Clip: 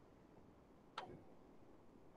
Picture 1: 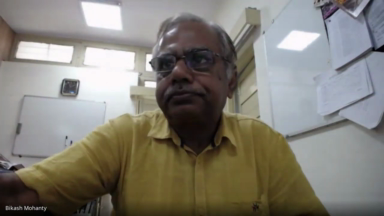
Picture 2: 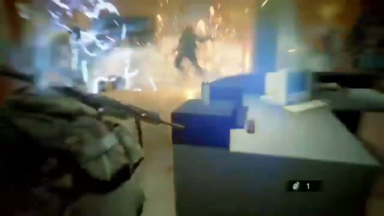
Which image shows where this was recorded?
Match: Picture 1